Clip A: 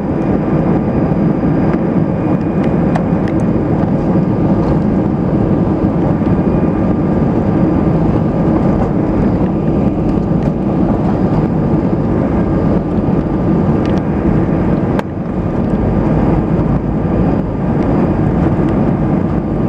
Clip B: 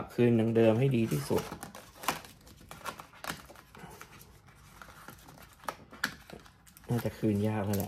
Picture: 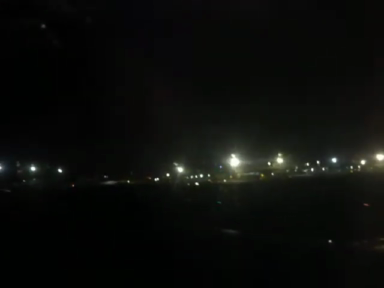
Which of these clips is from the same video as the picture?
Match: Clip A